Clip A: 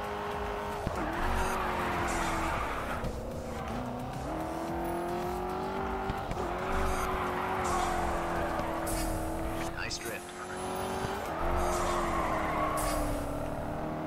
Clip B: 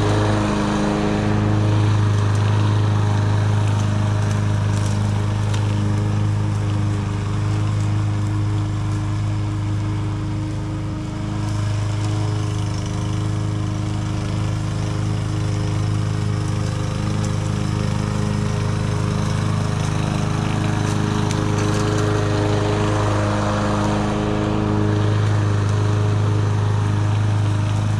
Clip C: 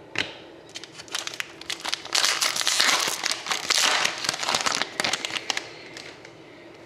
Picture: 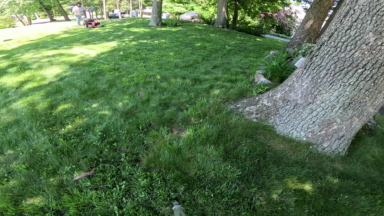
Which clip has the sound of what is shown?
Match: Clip B